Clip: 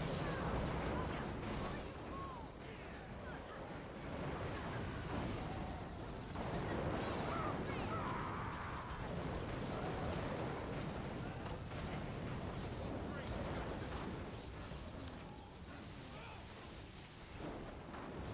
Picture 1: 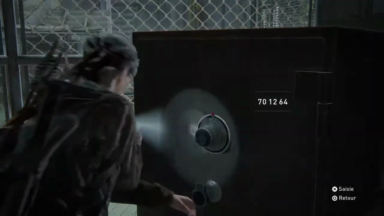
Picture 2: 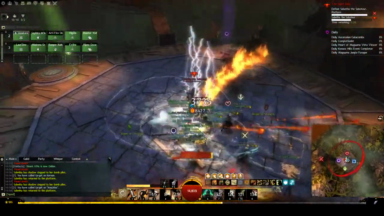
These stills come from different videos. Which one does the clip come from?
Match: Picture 2